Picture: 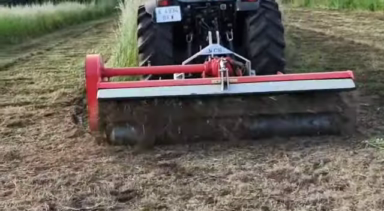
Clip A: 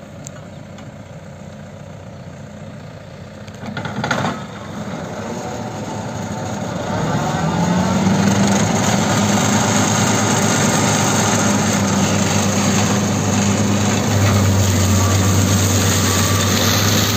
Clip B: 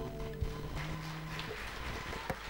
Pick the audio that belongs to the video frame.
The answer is A